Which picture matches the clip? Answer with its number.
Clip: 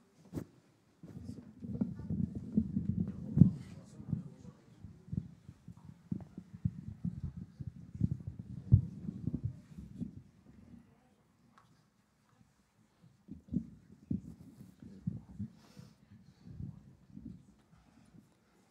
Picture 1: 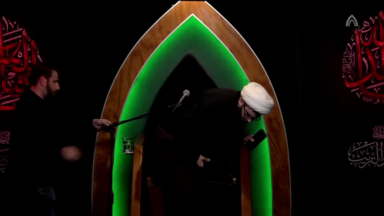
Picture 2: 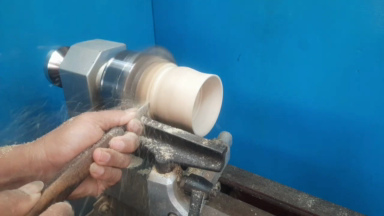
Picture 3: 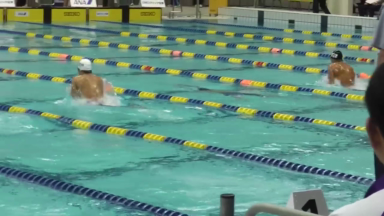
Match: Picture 1